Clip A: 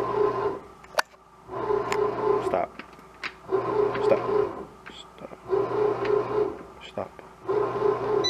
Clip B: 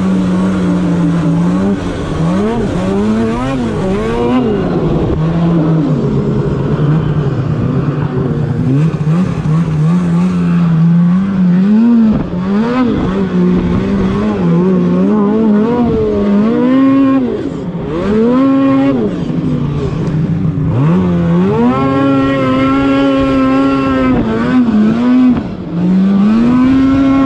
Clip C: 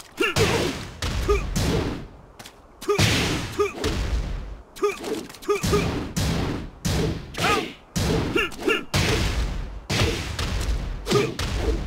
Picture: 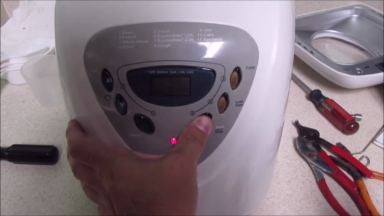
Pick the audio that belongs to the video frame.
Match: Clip A